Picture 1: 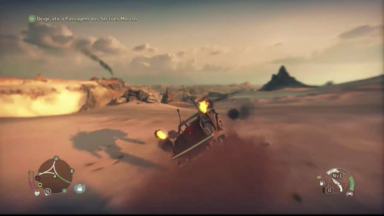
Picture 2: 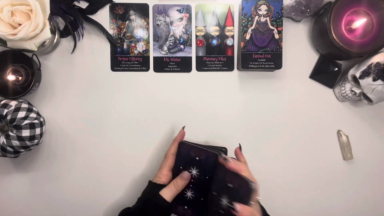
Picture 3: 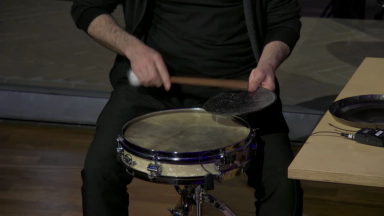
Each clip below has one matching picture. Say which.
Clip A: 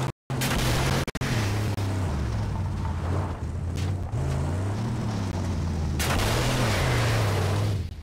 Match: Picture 1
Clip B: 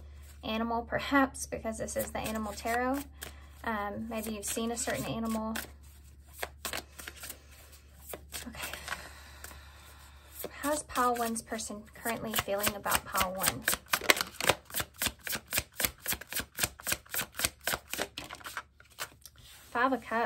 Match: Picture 2